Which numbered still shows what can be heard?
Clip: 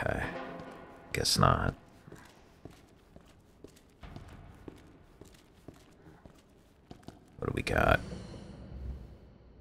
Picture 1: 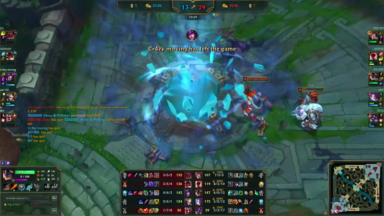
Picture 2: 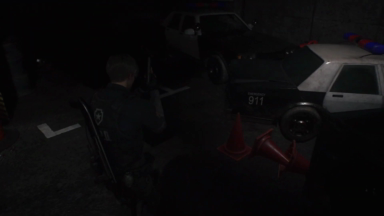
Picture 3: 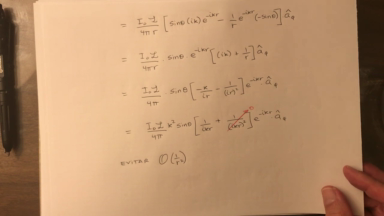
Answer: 2